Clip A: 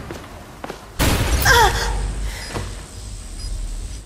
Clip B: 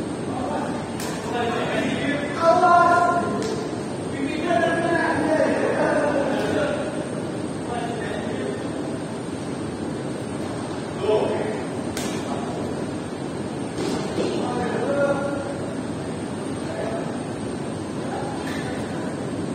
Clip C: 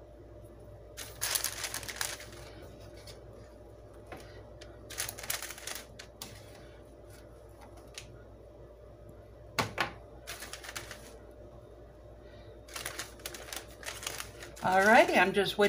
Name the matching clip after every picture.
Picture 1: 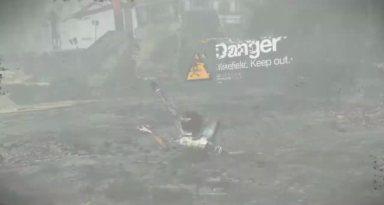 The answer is A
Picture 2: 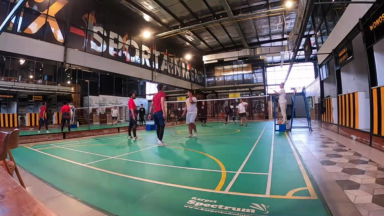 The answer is B